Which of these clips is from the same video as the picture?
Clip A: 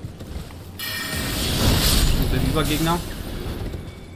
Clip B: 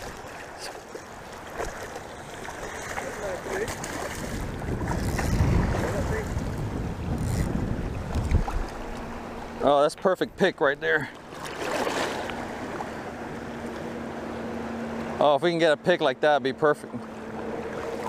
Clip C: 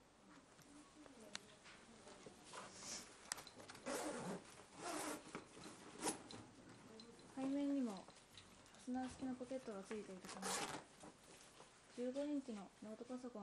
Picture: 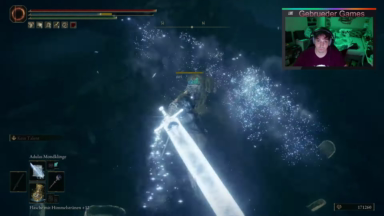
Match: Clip A